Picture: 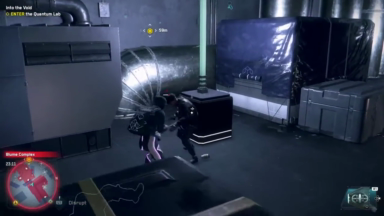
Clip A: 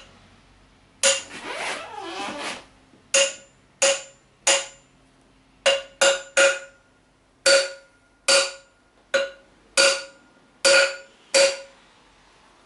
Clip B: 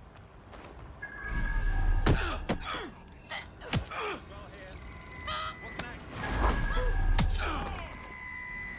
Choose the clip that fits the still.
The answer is B